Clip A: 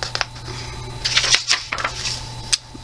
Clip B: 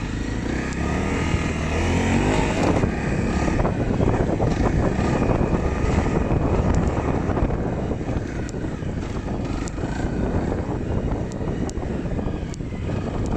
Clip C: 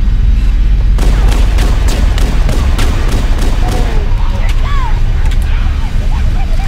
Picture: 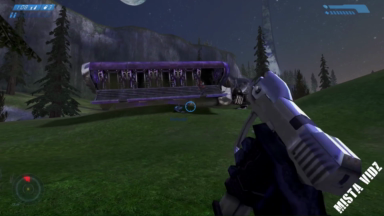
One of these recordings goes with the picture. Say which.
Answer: C